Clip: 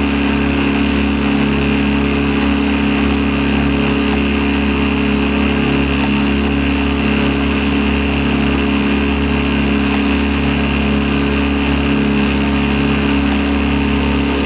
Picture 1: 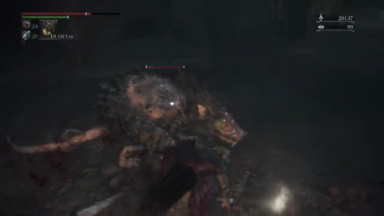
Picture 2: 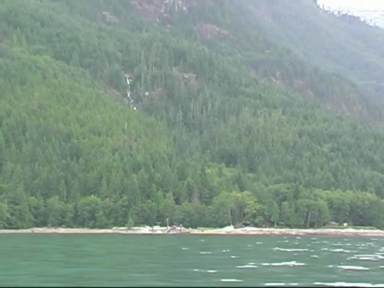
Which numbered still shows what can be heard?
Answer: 2